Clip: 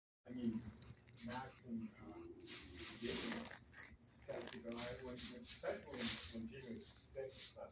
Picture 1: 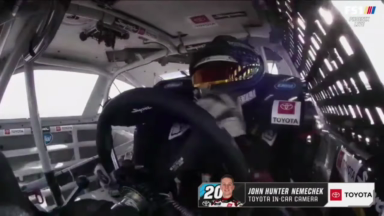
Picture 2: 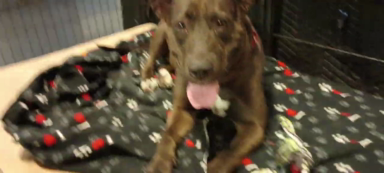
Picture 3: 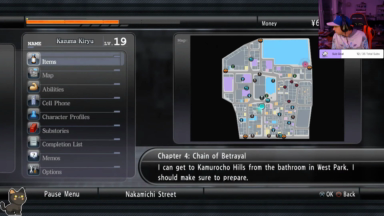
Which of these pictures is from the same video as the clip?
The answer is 2